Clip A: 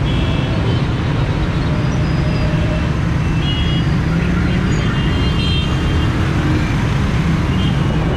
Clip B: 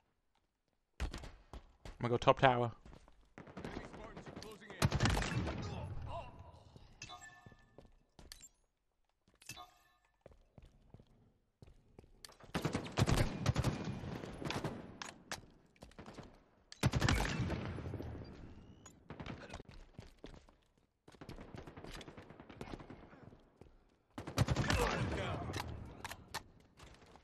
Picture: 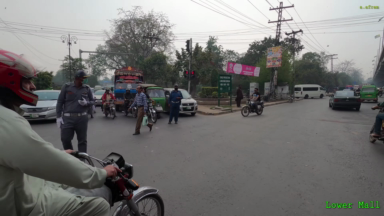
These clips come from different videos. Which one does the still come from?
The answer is A